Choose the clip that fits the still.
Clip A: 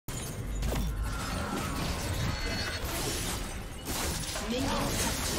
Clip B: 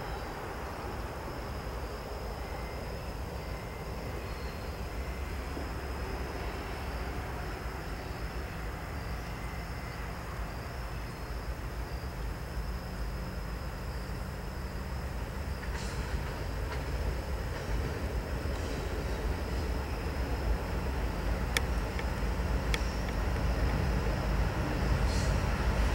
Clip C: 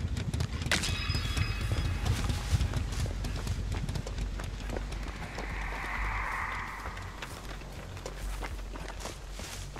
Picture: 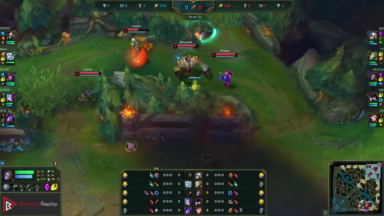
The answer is A